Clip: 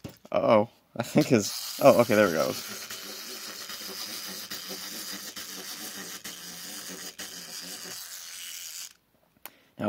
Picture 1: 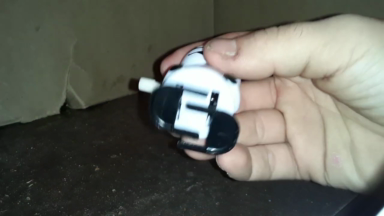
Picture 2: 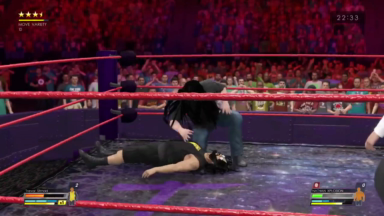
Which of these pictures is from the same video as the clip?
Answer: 1